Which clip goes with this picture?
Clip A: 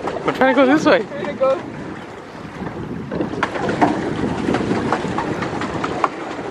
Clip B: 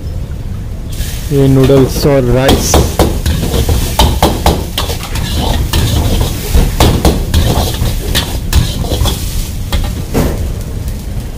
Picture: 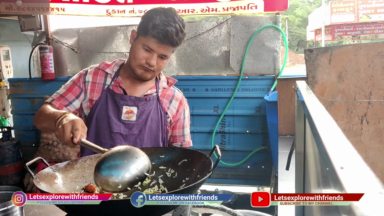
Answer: B